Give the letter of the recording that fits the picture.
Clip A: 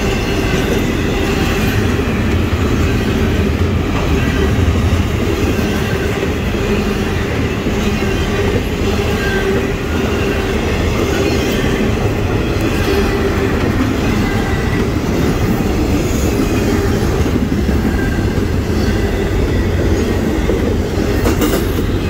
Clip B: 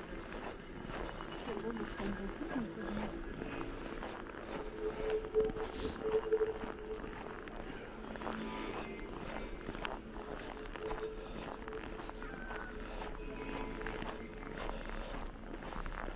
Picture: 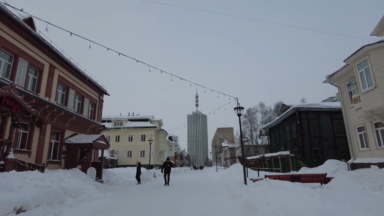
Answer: B